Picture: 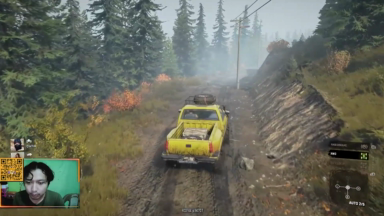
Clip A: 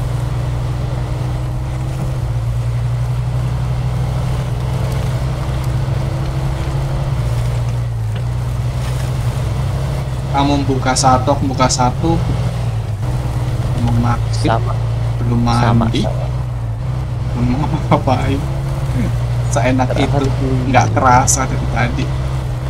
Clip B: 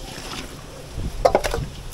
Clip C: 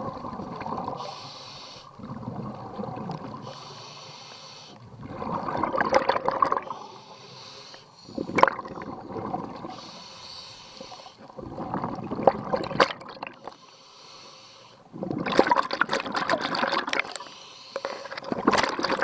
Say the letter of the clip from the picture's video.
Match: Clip A